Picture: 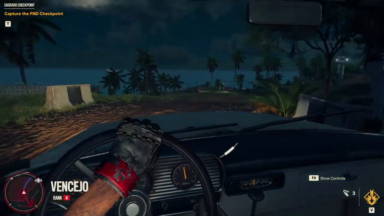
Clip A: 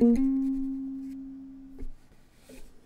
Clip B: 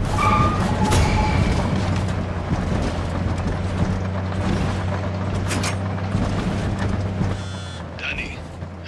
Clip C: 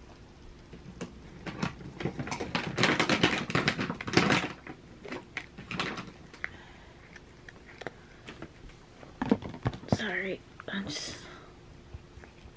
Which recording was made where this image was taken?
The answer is B